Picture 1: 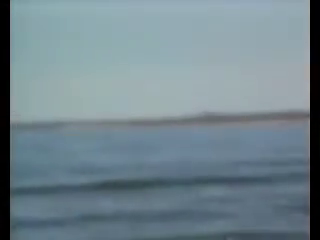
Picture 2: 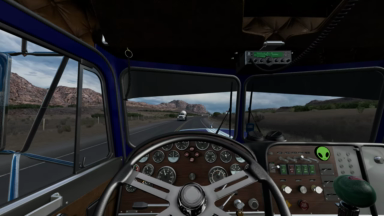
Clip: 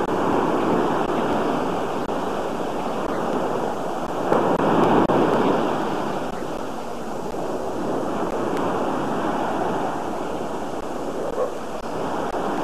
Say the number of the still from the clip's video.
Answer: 1